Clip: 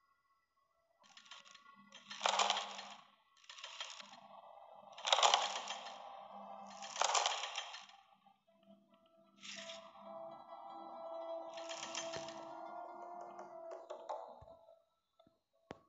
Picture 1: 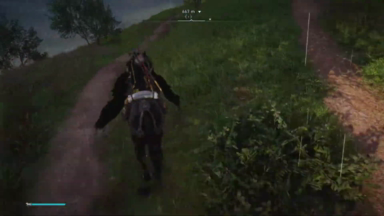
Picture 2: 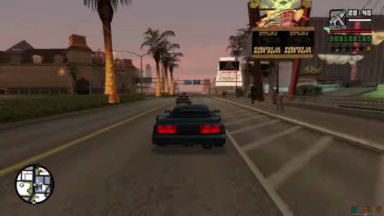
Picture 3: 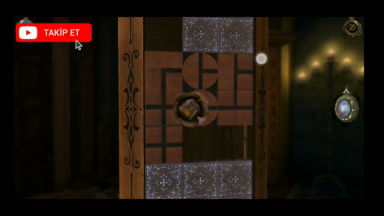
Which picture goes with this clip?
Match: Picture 3